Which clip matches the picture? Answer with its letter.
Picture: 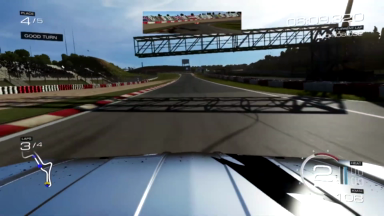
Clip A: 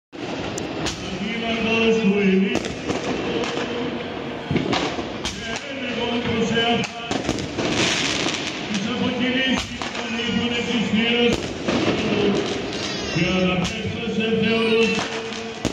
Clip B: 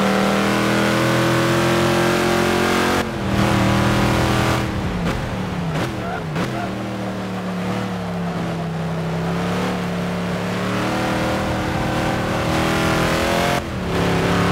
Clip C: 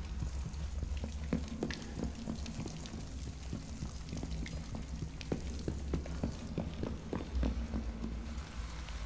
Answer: B